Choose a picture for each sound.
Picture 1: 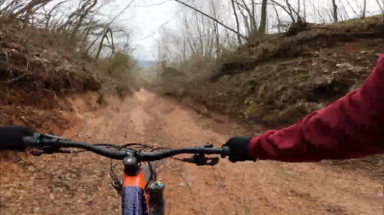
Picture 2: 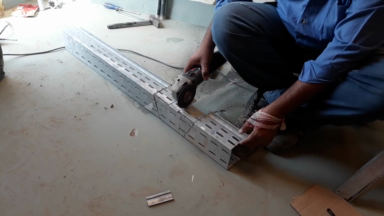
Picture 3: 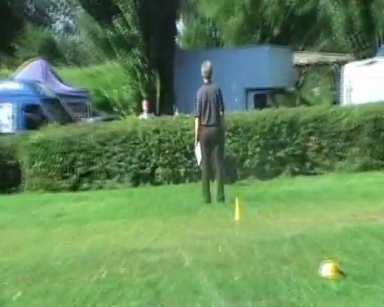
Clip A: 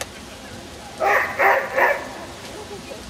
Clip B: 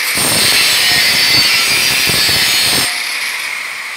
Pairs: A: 3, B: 2